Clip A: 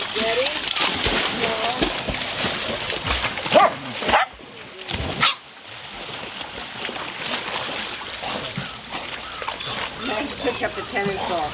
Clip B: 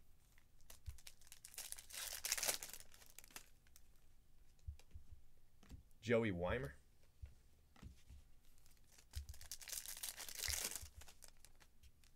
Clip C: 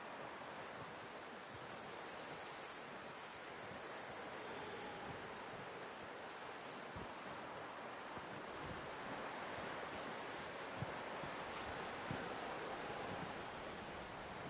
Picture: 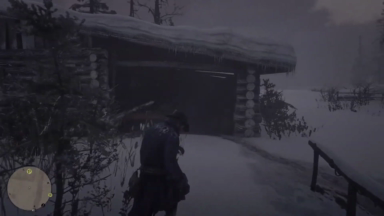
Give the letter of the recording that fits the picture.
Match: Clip C